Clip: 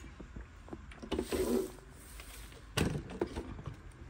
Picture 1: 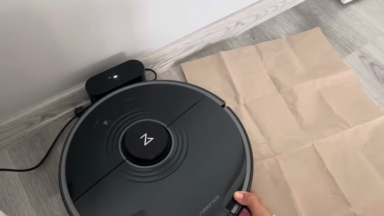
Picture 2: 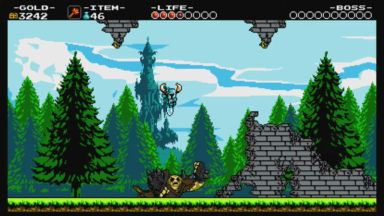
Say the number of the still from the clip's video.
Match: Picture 1